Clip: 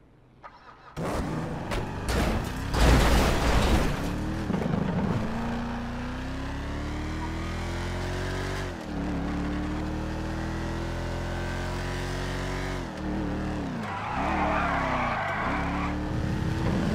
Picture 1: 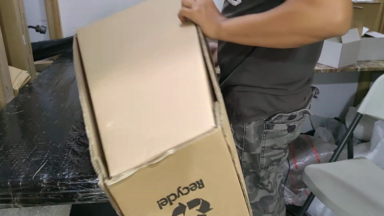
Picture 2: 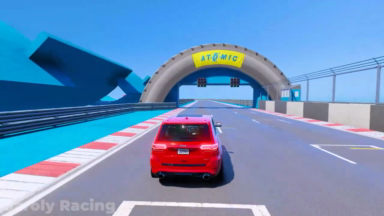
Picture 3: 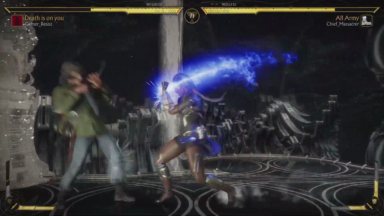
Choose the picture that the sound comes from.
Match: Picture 2